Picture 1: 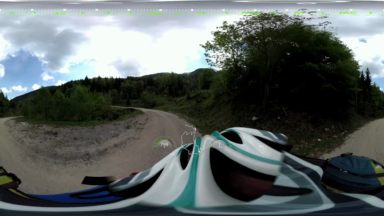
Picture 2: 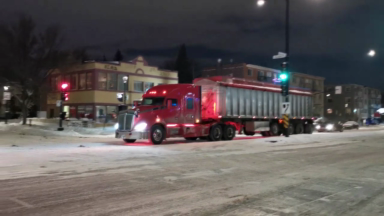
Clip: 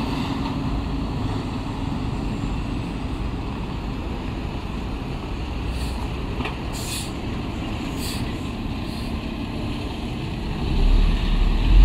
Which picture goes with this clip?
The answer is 2